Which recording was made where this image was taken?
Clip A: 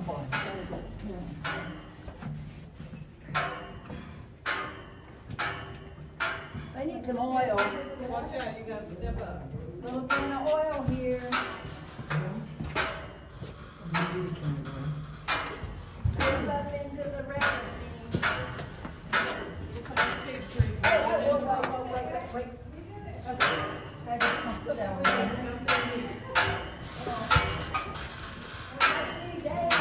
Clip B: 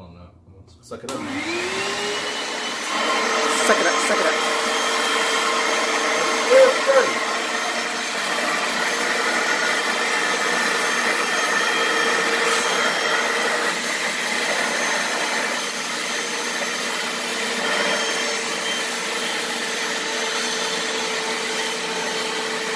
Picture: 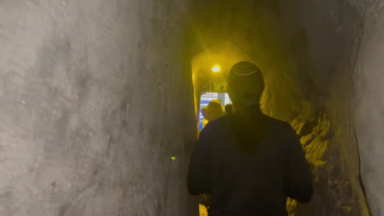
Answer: A